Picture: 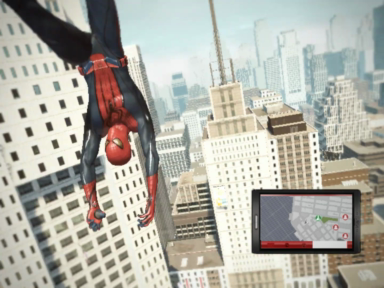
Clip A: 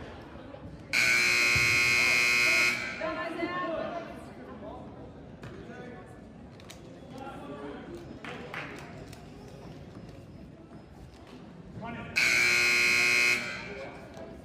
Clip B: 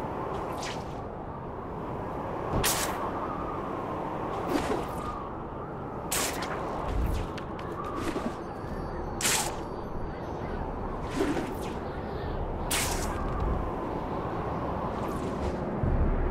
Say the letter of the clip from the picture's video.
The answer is B